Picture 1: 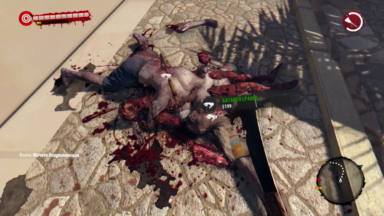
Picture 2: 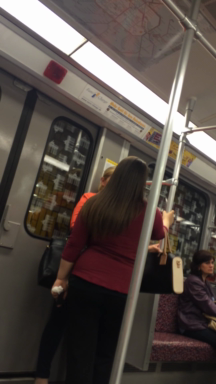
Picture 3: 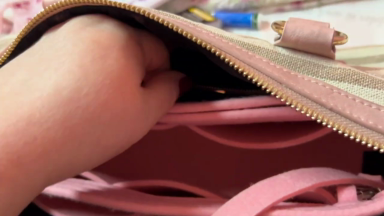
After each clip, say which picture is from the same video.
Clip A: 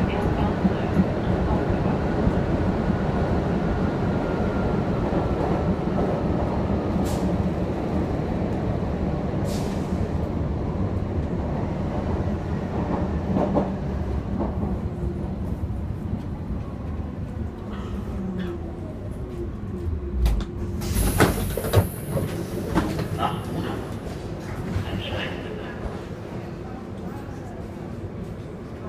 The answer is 2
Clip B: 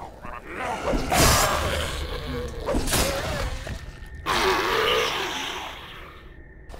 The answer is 1